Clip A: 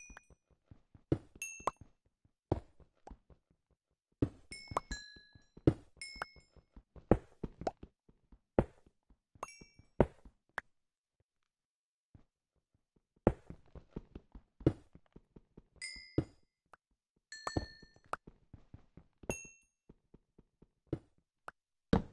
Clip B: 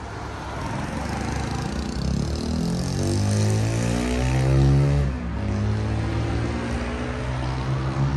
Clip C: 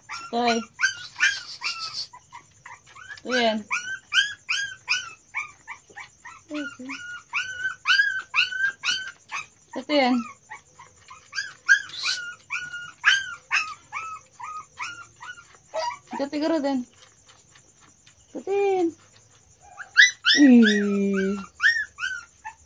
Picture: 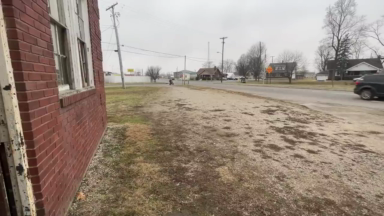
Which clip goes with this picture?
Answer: B